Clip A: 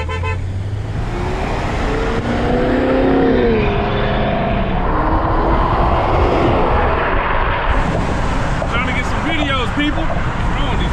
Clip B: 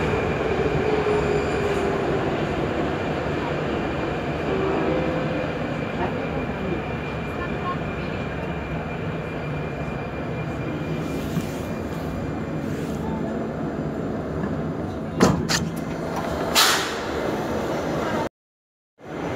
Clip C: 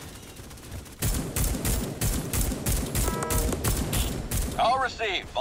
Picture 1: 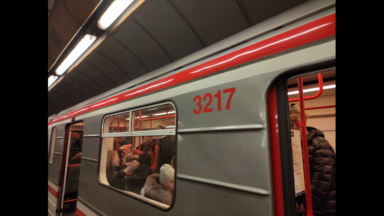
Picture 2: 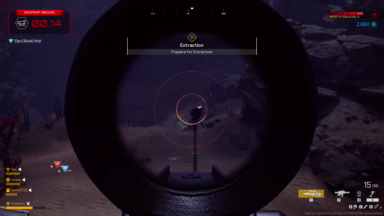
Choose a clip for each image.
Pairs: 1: B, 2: C